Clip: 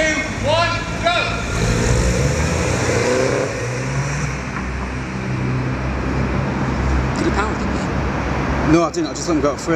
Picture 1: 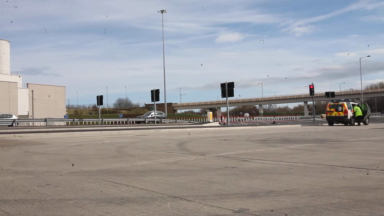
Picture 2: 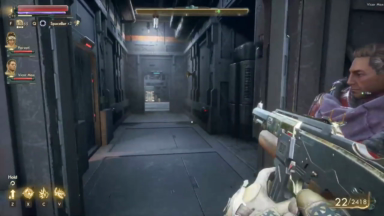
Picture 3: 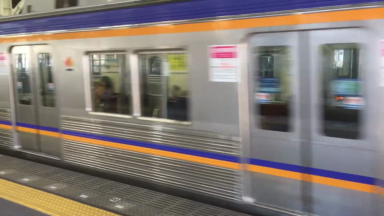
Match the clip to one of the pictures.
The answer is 1